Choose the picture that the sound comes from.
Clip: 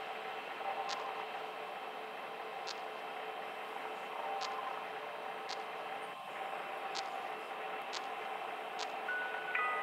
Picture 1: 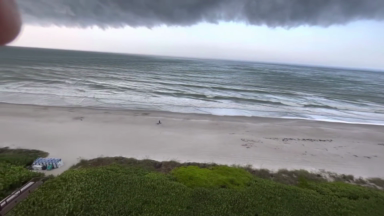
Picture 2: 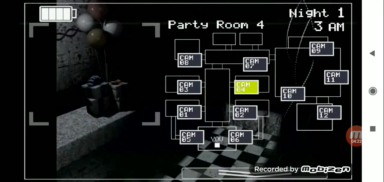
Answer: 2